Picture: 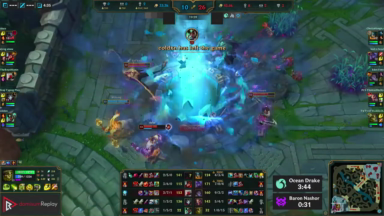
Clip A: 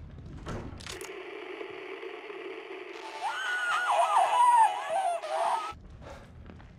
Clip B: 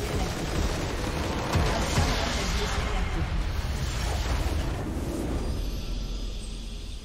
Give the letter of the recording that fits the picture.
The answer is B